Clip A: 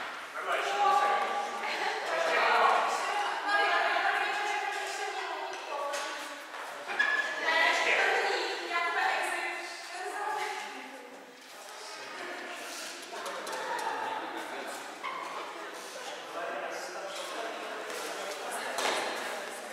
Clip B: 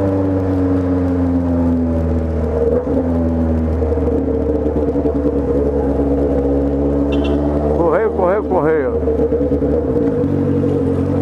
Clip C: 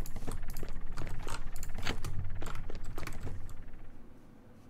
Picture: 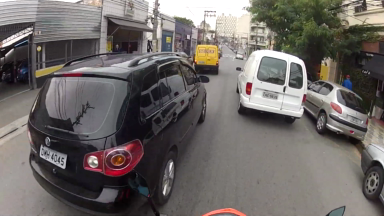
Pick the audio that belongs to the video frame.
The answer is B